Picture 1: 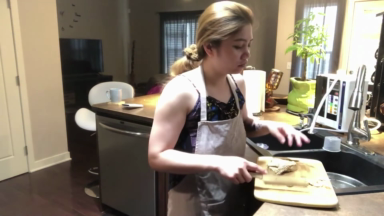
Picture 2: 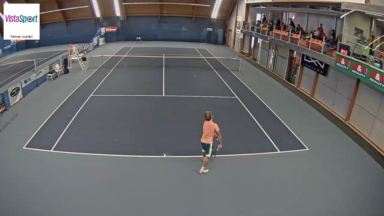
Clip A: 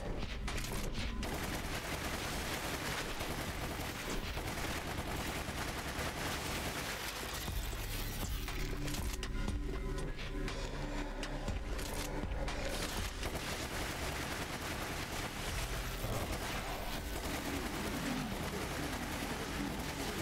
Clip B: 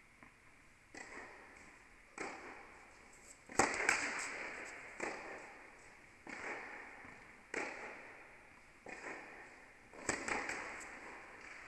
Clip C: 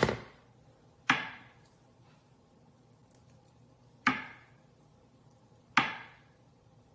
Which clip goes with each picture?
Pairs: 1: C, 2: B